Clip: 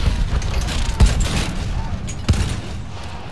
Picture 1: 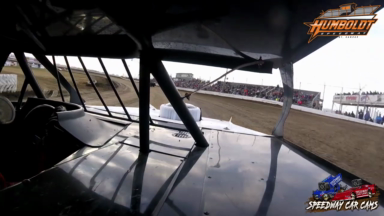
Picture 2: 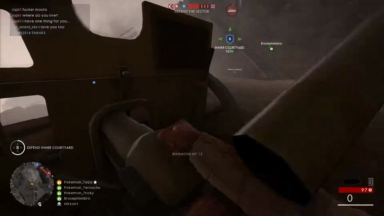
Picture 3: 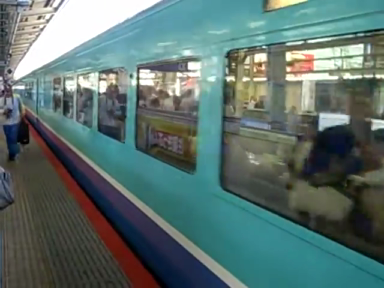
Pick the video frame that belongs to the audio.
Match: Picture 2